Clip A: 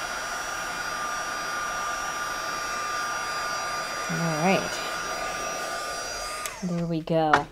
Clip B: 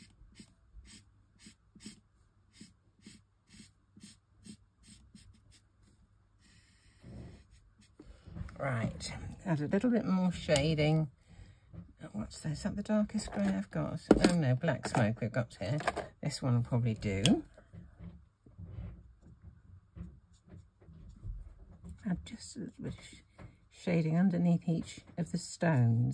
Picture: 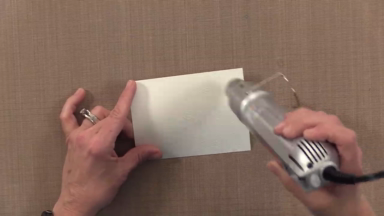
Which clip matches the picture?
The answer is A